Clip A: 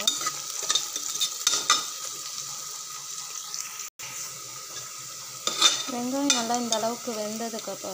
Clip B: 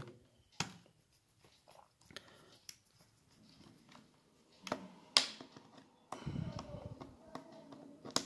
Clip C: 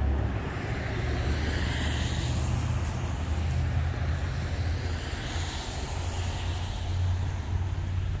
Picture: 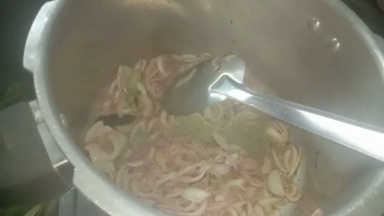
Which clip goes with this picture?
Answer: A